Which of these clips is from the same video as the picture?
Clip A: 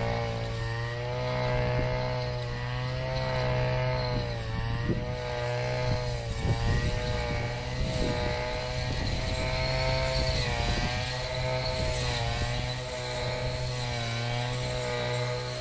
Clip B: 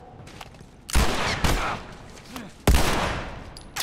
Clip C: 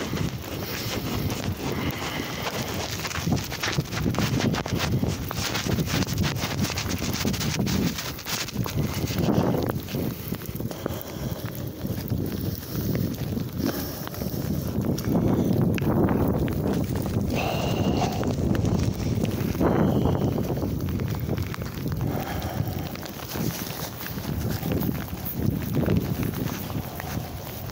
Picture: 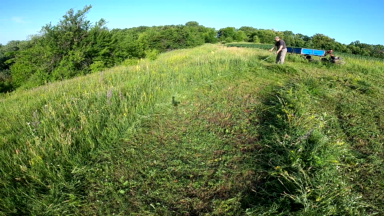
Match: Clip A